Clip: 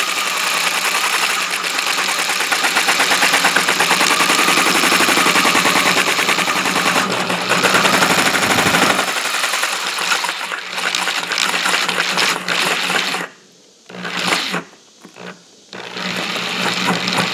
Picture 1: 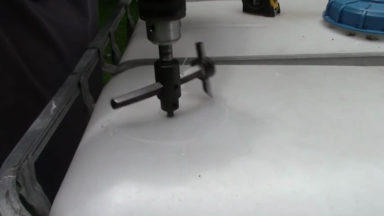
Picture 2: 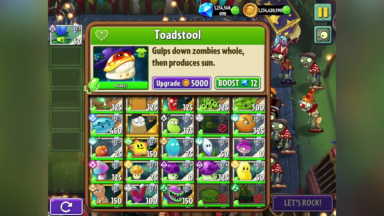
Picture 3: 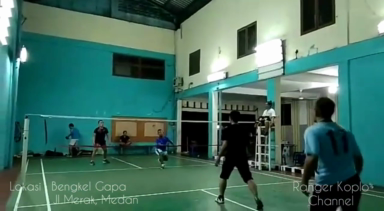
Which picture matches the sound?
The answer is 1